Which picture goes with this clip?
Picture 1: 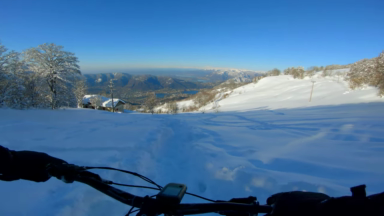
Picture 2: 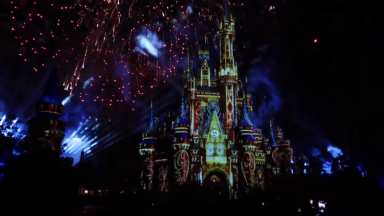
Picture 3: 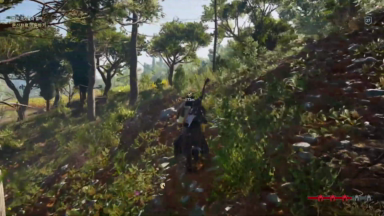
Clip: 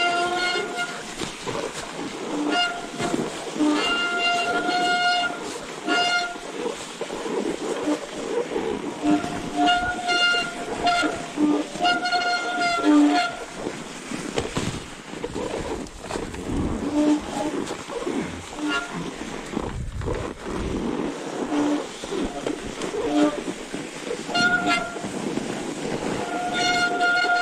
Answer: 1